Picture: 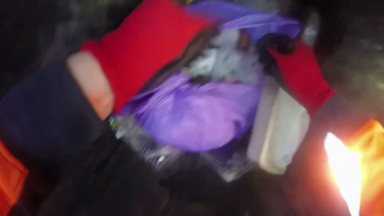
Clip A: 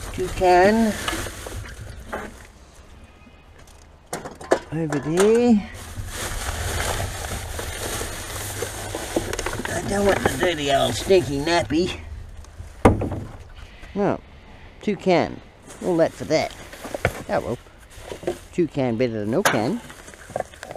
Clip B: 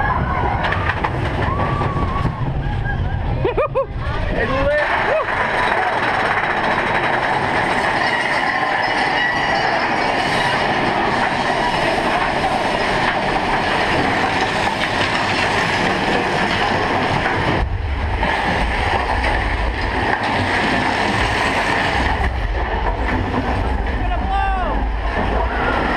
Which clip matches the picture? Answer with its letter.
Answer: A